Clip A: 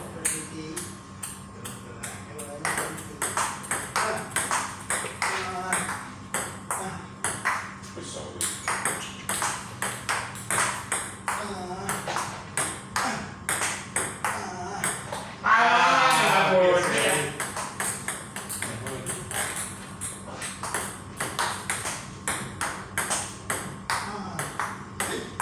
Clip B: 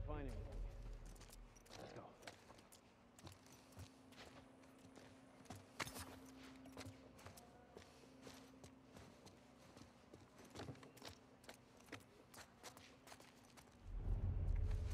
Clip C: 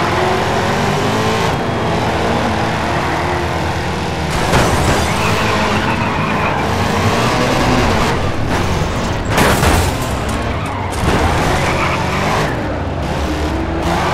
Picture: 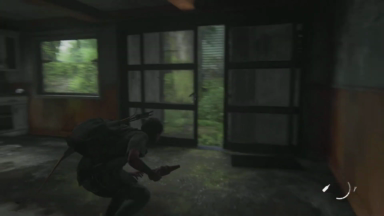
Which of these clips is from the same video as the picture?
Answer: B